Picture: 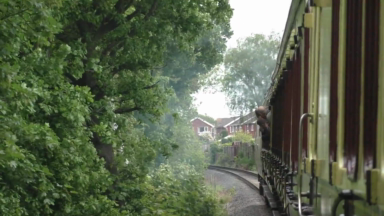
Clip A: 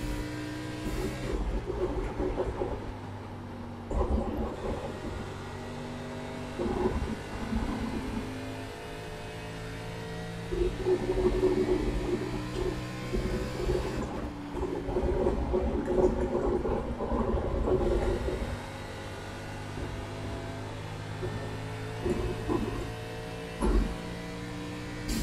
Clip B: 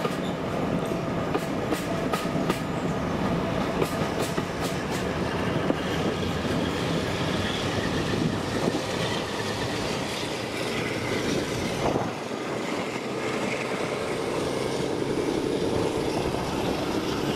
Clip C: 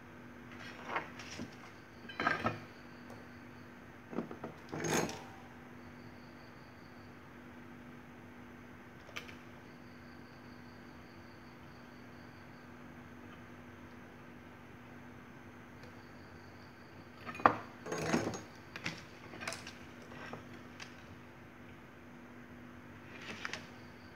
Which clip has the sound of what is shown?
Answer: B